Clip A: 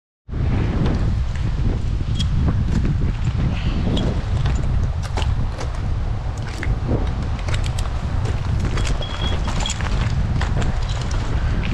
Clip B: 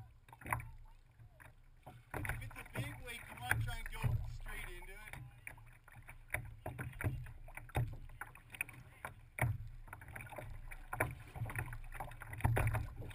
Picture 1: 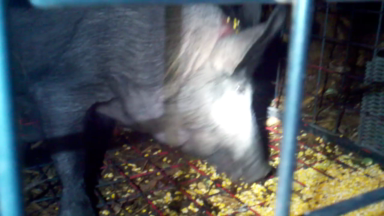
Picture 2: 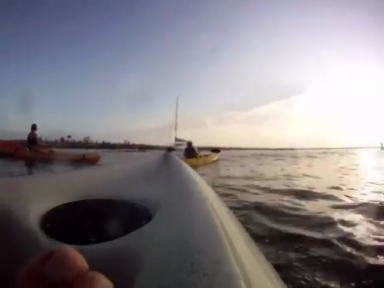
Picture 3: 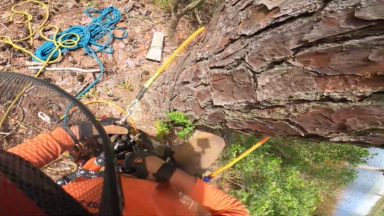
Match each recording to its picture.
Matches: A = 3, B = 2